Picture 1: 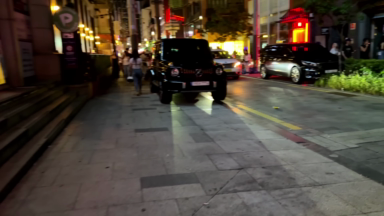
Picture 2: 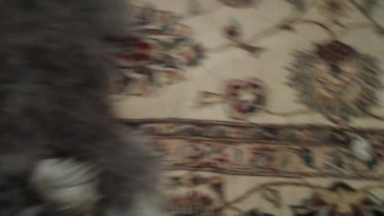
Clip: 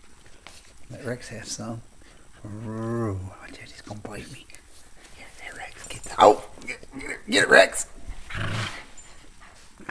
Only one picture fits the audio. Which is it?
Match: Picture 2